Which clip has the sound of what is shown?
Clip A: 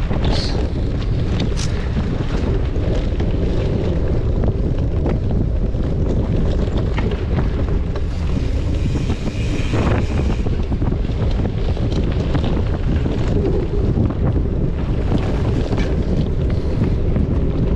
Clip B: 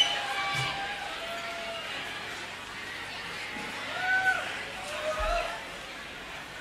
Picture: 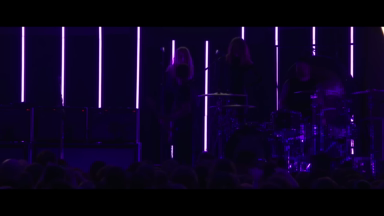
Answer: B